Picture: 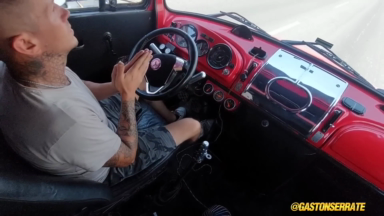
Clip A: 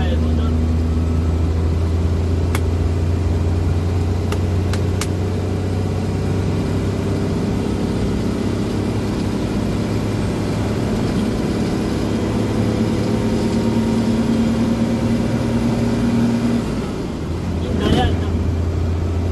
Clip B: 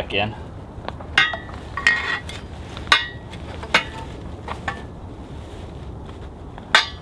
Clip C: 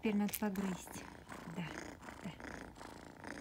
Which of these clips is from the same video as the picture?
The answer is A